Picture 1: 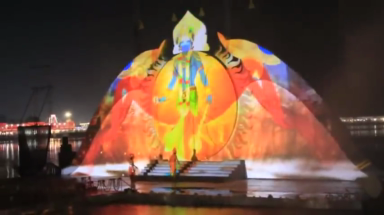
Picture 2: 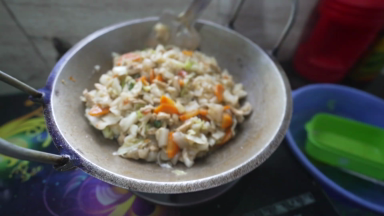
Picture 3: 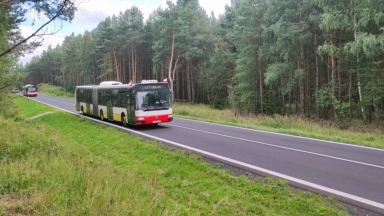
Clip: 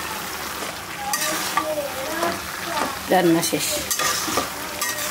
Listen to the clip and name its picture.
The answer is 2